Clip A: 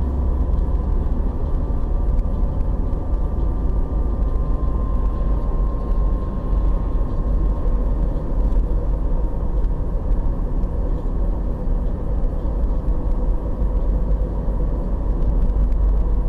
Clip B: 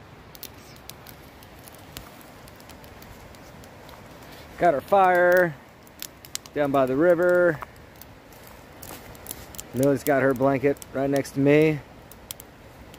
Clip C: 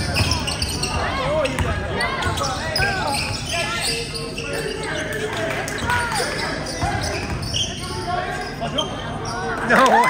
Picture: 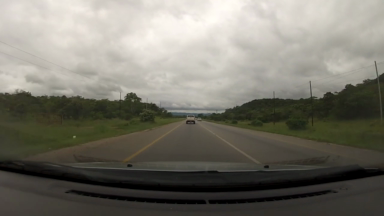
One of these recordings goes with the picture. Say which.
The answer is A